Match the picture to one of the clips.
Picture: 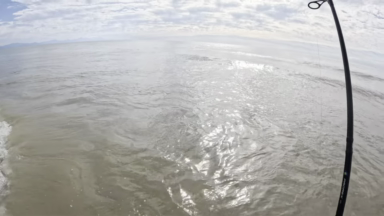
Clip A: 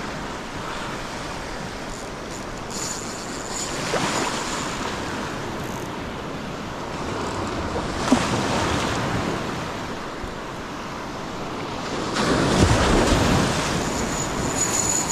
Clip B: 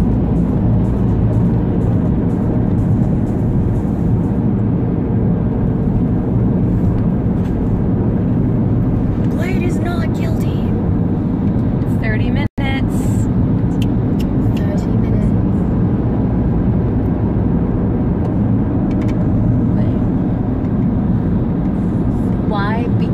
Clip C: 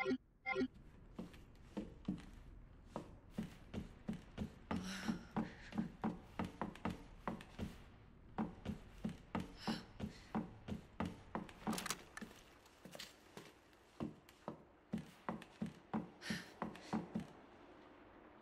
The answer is A